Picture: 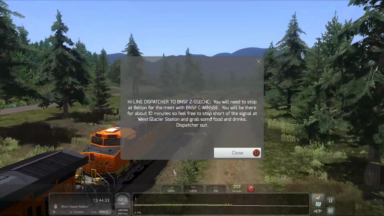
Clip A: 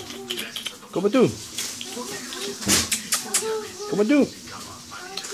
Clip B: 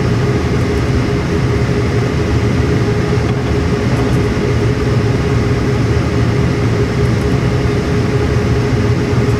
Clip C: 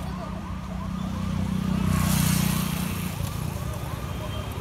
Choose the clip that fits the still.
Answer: B